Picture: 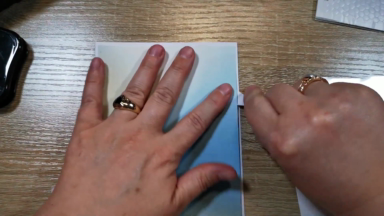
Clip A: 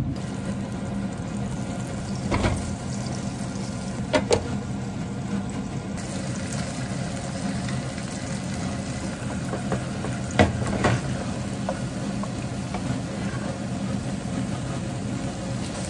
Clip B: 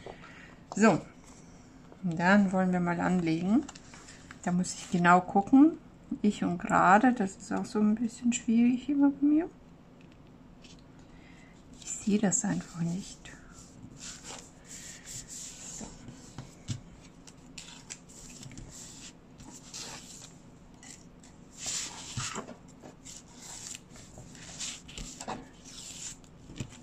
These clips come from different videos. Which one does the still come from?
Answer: B